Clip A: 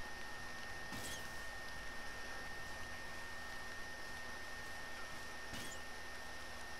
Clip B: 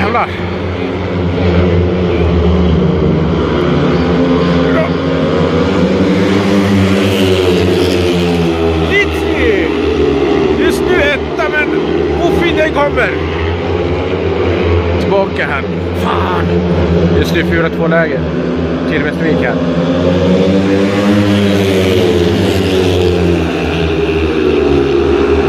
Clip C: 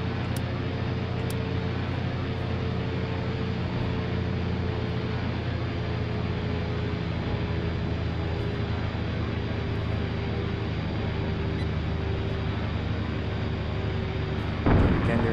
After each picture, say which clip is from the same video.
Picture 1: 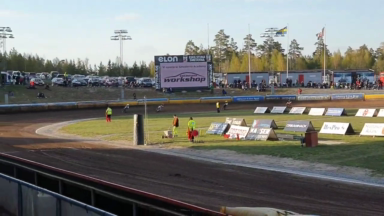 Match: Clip B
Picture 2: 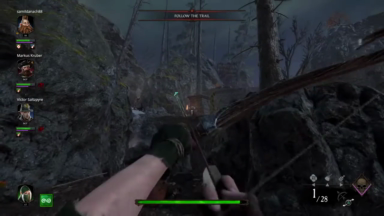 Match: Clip A